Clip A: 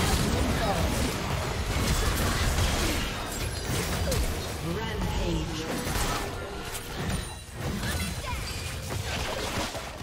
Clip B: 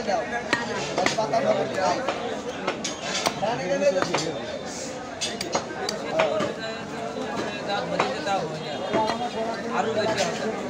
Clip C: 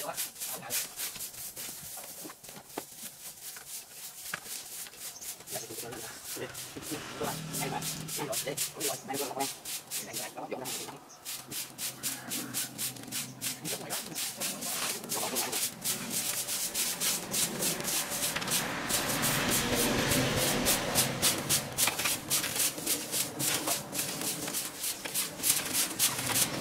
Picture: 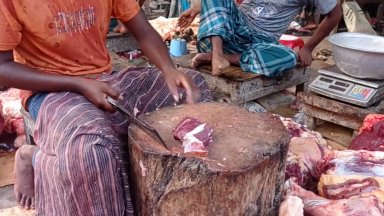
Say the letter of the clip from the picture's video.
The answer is B